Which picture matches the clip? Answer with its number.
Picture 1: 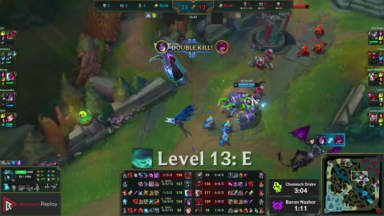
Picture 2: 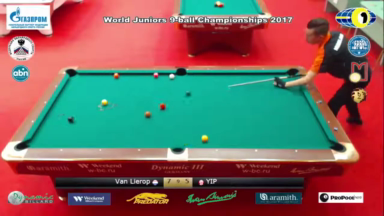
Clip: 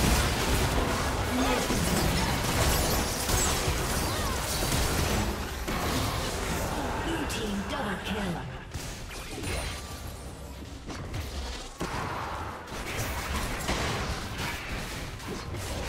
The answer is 1